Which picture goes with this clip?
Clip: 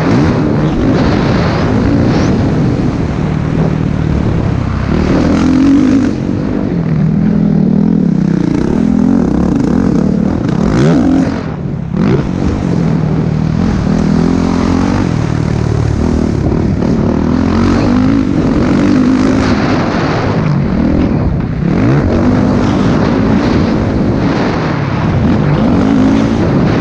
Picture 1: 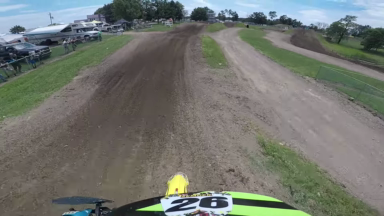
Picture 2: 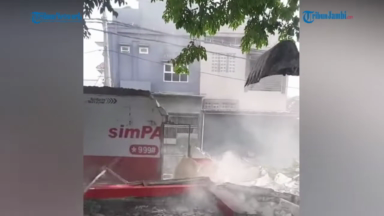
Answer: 1